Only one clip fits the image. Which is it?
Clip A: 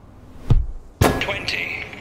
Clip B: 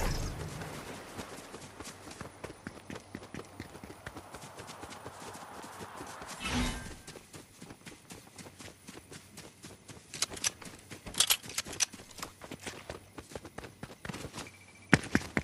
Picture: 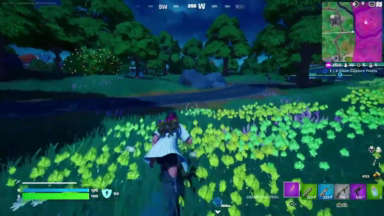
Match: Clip B